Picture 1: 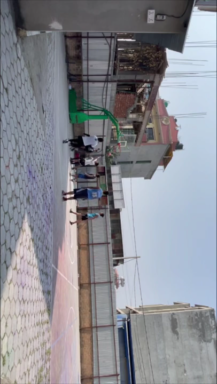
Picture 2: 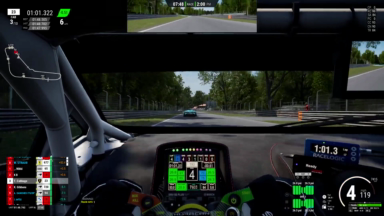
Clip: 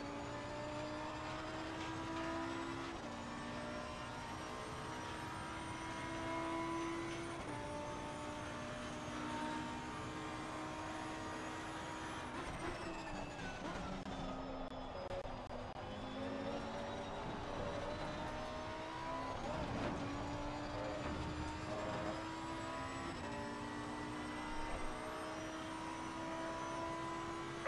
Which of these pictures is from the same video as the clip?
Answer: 2